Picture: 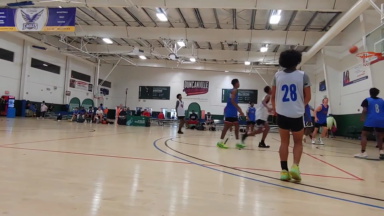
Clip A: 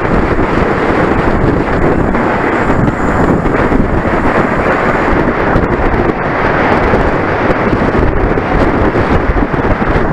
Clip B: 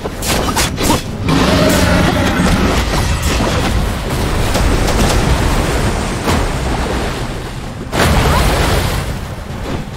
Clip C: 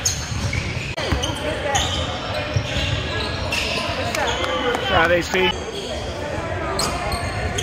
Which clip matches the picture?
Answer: C